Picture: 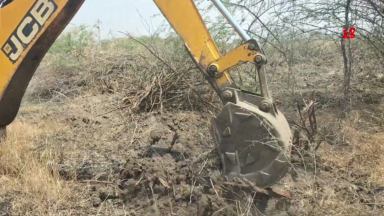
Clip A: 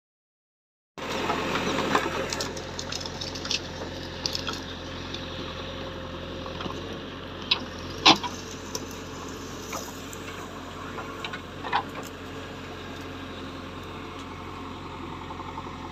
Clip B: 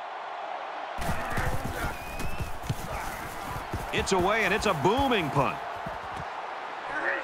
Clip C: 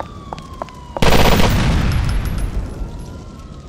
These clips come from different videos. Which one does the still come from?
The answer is A